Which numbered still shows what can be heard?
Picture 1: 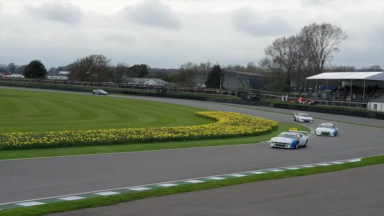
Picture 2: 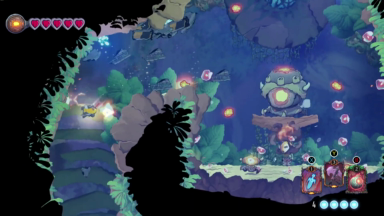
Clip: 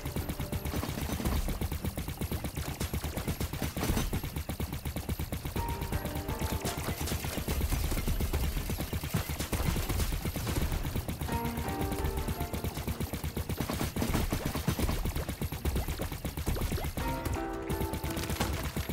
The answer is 2